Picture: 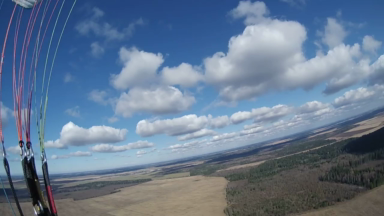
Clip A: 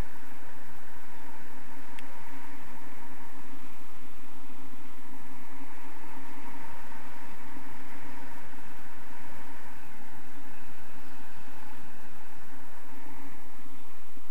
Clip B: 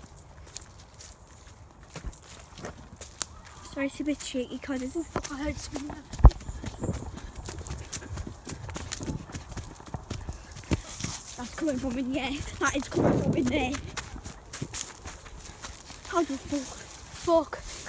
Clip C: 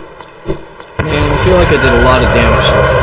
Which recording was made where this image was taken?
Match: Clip A